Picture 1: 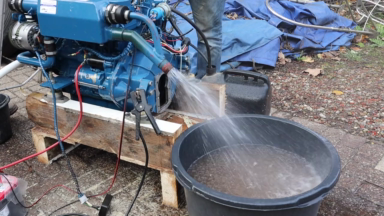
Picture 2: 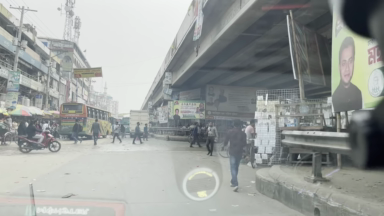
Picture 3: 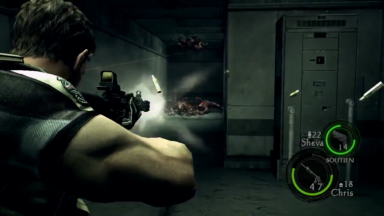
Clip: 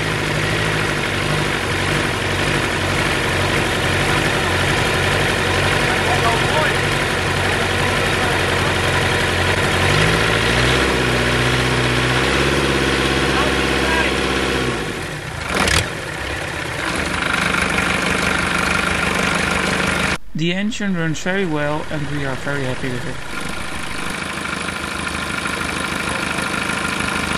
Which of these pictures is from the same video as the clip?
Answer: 1